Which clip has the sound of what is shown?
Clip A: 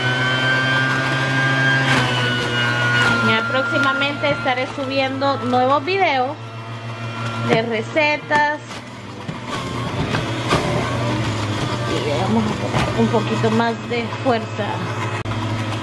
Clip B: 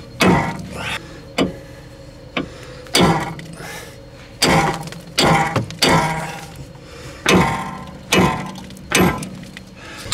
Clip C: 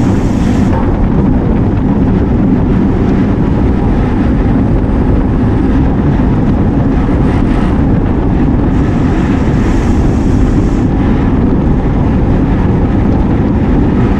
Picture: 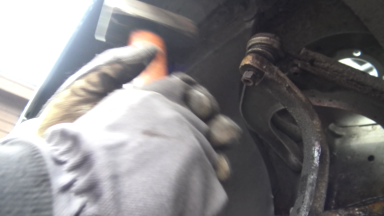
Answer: B